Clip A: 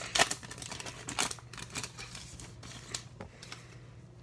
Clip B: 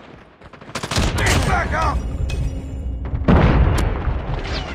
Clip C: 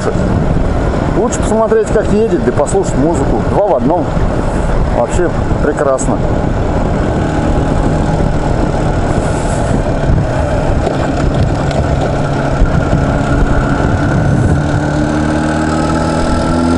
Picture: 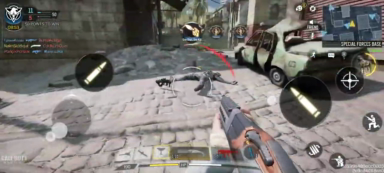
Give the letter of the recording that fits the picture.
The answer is B